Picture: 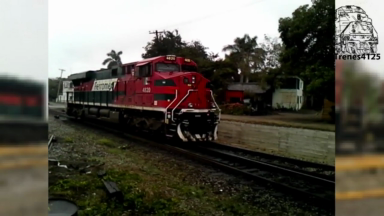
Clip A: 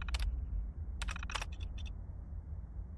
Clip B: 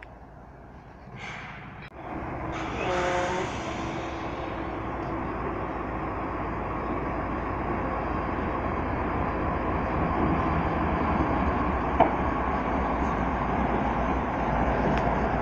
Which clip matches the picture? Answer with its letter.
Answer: B